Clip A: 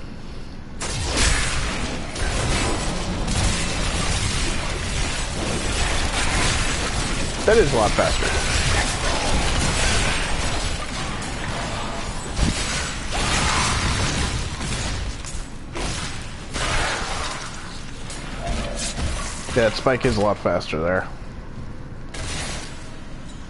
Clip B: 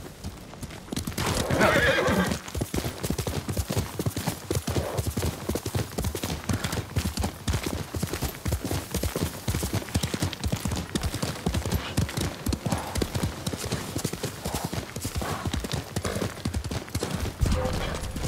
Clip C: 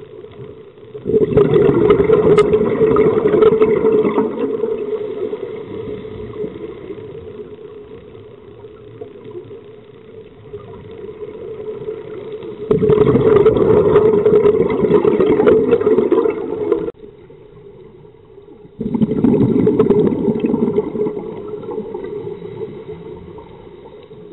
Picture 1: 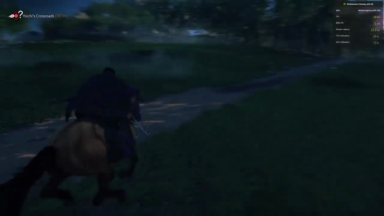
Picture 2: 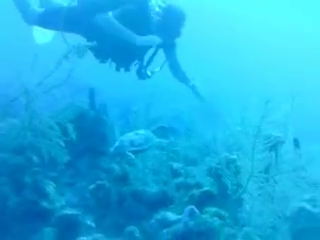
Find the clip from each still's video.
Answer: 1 B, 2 C